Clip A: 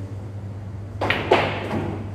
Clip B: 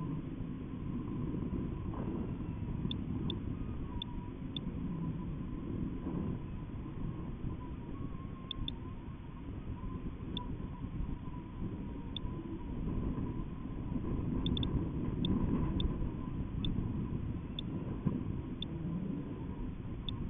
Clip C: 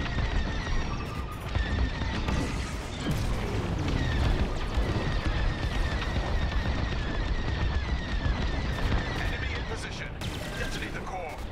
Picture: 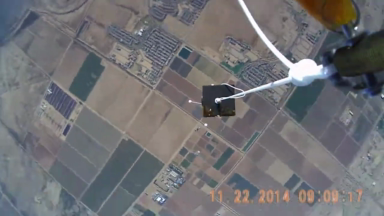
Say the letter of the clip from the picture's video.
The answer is B